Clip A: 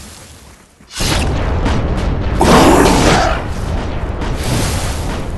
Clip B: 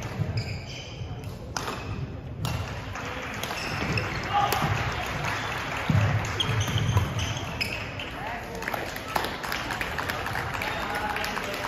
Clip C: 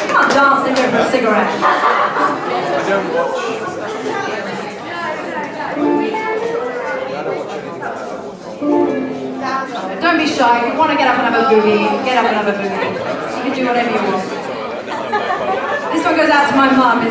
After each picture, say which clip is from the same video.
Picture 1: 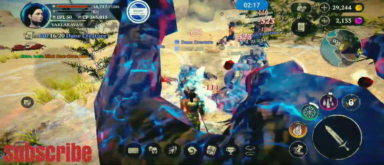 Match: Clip A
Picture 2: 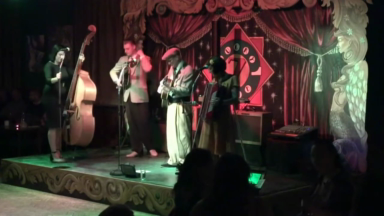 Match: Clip C